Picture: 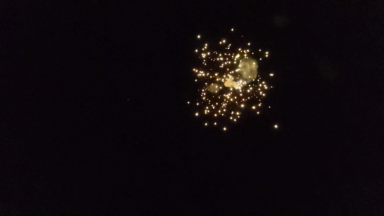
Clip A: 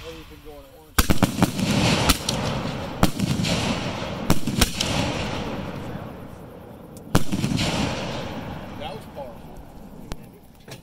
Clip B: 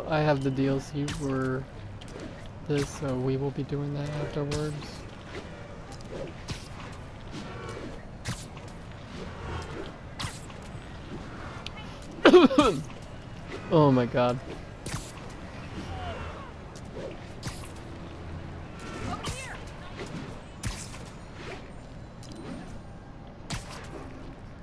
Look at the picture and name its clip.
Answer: A